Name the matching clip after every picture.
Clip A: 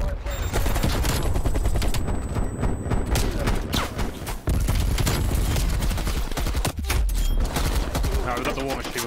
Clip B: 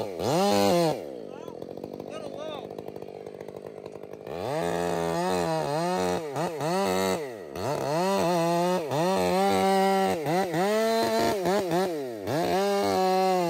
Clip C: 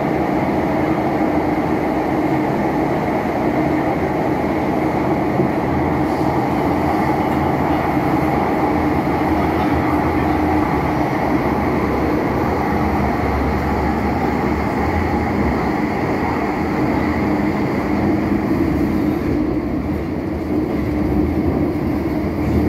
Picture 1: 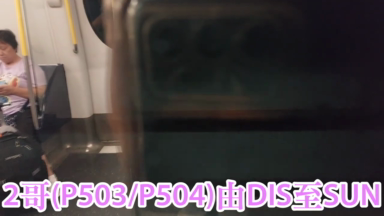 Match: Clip C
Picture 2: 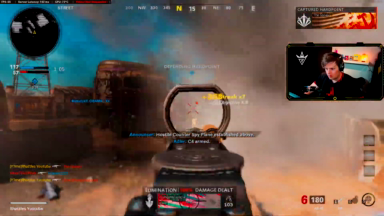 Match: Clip A